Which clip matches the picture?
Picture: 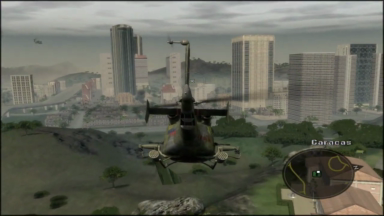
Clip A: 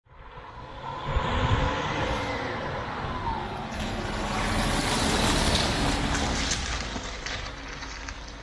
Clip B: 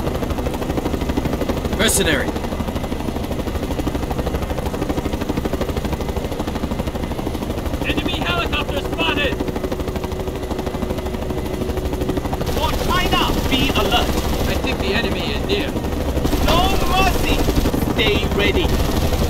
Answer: B